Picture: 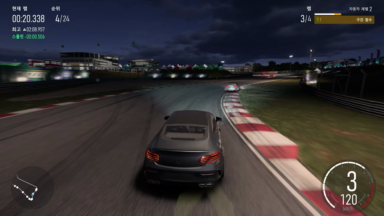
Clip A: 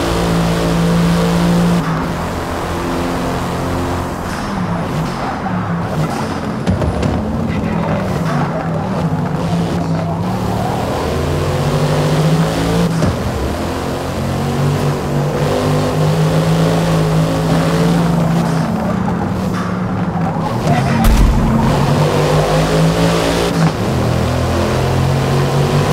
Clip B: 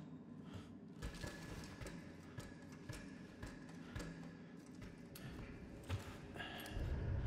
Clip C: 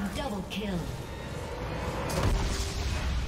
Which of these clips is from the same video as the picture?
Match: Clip A